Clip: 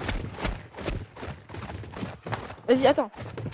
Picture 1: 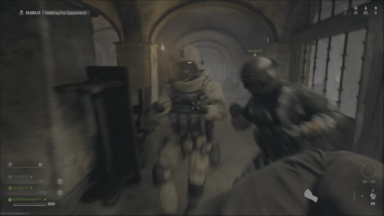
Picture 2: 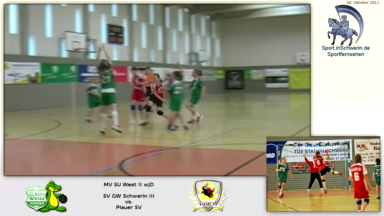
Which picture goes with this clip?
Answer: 1